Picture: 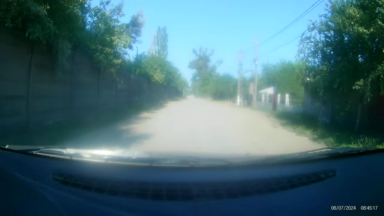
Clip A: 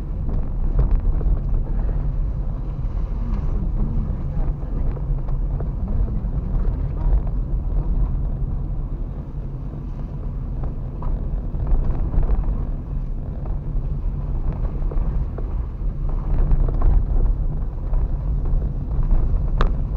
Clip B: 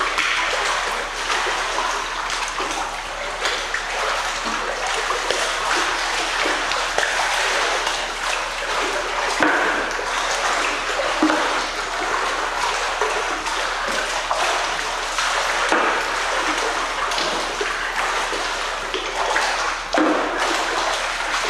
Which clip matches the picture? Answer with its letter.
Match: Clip A